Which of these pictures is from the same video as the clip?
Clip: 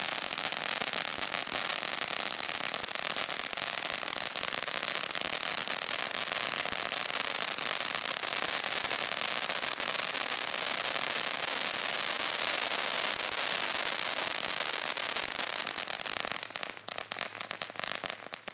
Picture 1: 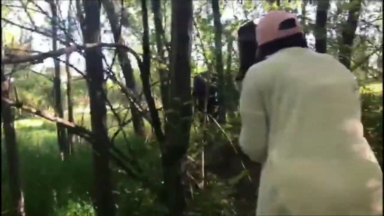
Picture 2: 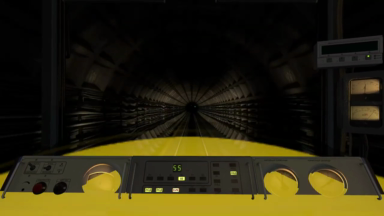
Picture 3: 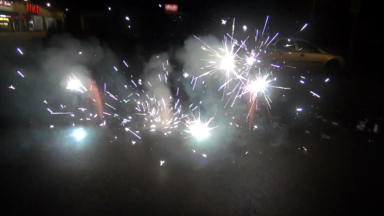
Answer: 3